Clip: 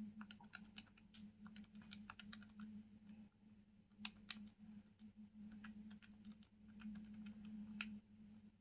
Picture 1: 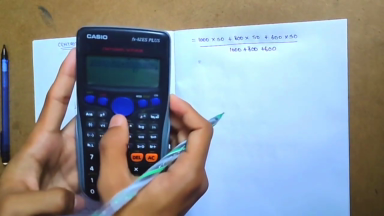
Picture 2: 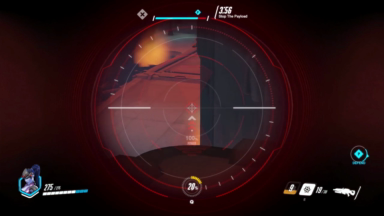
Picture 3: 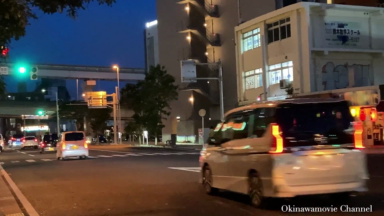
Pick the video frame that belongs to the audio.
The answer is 1